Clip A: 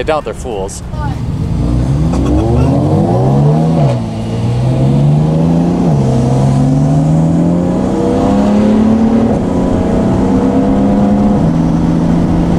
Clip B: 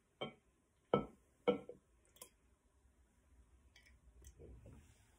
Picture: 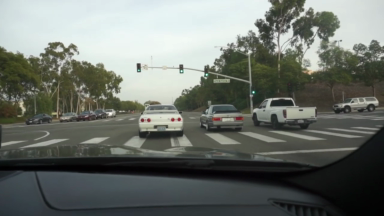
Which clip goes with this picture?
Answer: A